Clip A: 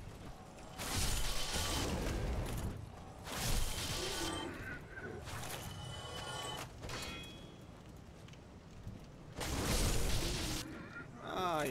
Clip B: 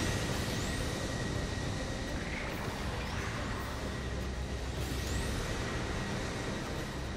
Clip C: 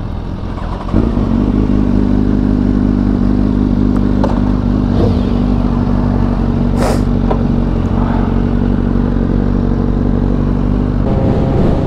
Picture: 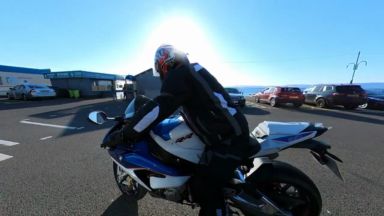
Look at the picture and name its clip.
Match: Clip C